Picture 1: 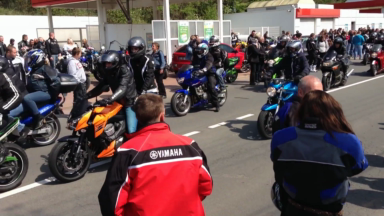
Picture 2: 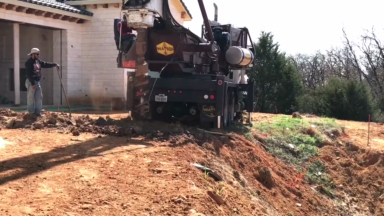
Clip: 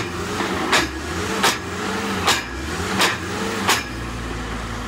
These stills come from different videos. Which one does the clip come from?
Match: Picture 2